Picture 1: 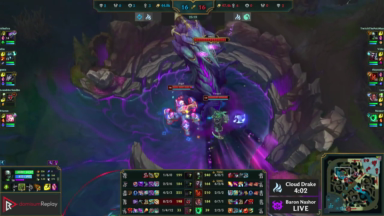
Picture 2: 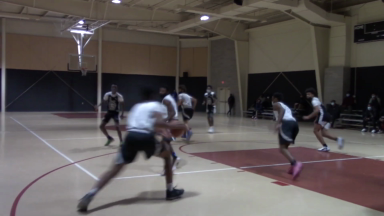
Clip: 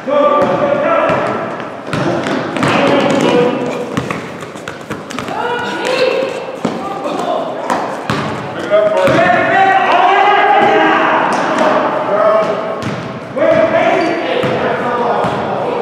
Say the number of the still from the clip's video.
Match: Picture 2